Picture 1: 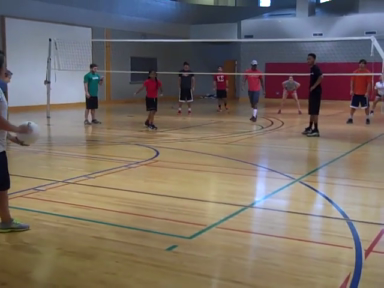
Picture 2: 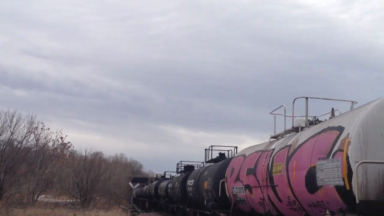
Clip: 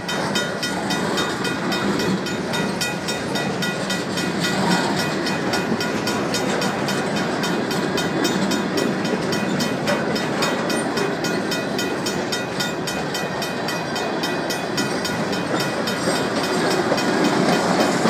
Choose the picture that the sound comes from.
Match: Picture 2